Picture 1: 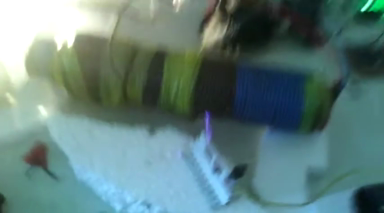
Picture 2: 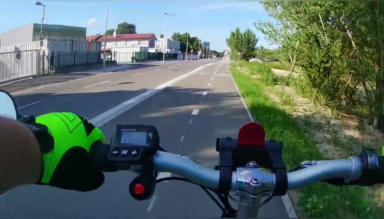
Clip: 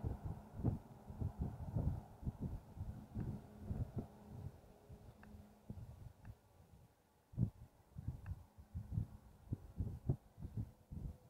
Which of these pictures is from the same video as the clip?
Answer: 2